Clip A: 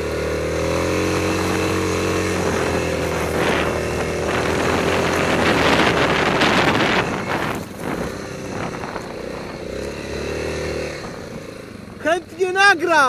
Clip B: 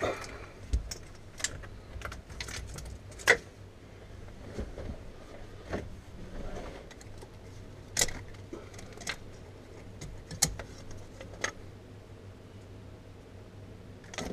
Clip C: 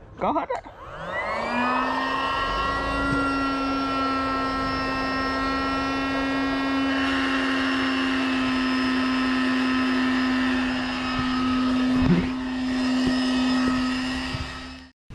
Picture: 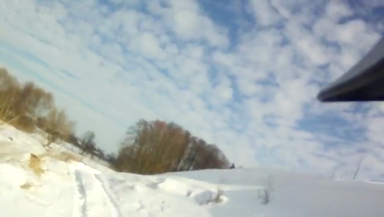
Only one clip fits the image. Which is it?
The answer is A